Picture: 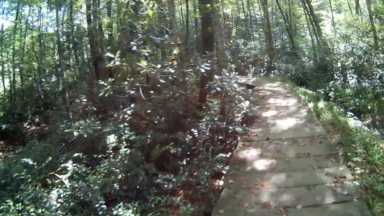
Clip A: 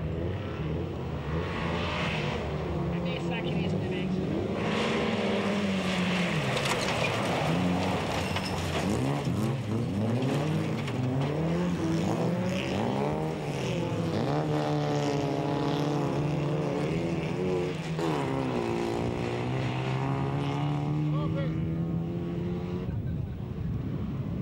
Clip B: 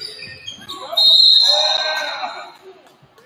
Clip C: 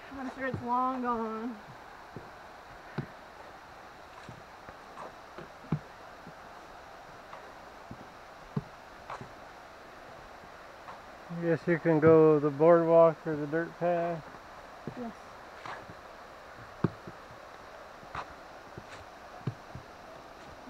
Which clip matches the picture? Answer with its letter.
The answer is C